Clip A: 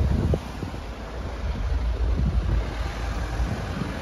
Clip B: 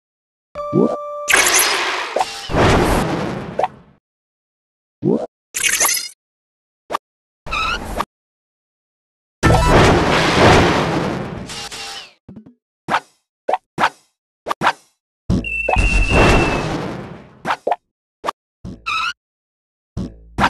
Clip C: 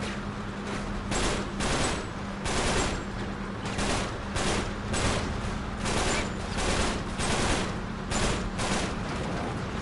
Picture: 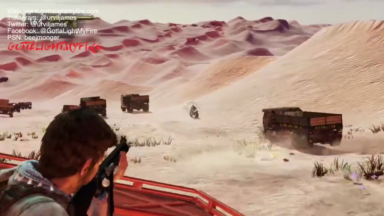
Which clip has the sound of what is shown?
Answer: C